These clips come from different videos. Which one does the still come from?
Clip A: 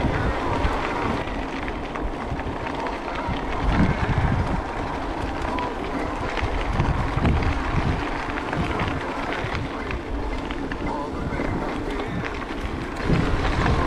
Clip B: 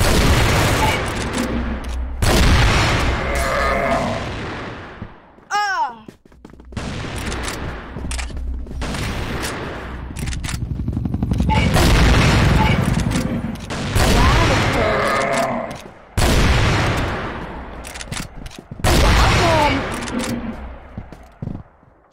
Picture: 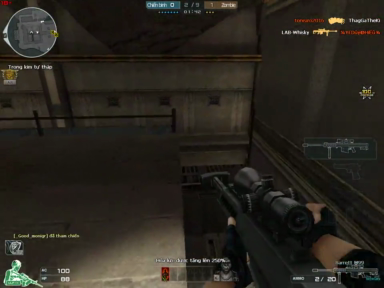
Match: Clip B